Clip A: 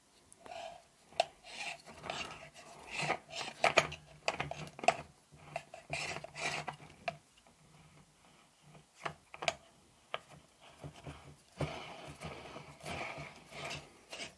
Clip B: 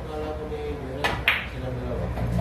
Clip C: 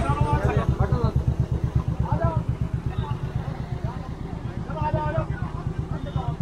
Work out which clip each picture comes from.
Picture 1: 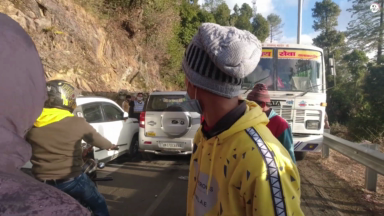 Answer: C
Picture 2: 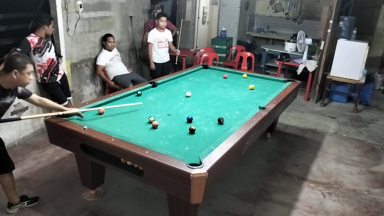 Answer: B